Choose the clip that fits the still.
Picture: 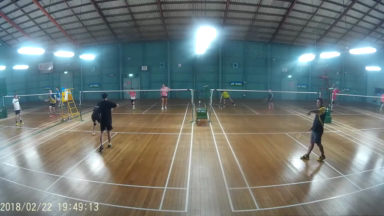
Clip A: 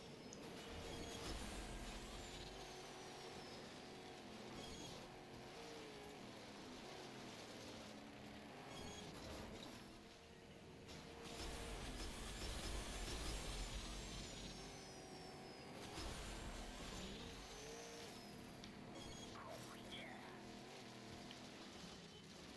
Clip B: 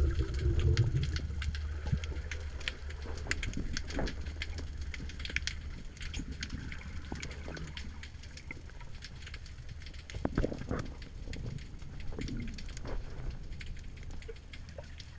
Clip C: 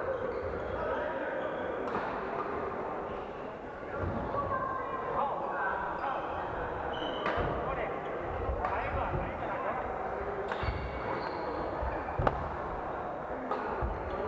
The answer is C